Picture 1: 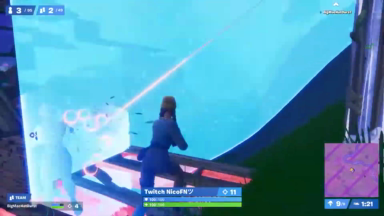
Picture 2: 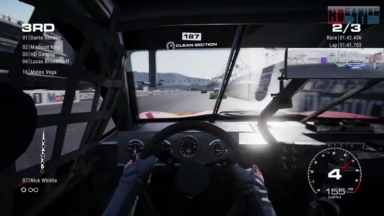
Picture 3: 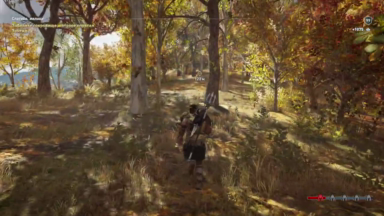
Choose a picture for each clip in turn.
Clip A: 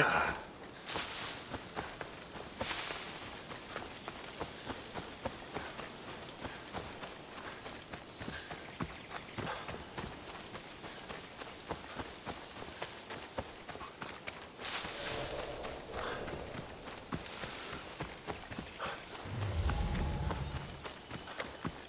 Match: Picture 3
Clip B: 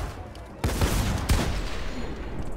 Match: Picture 1